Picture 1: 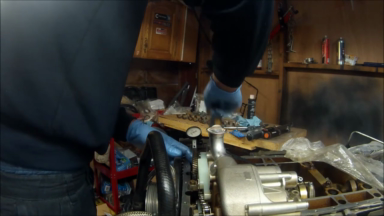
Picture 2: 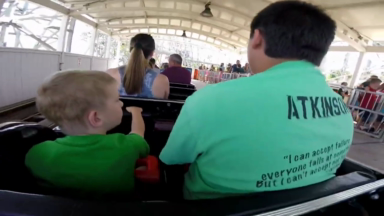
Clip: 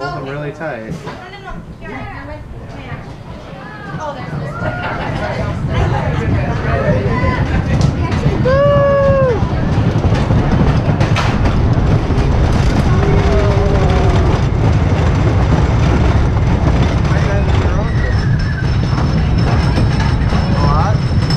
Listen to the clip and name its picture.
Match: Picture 2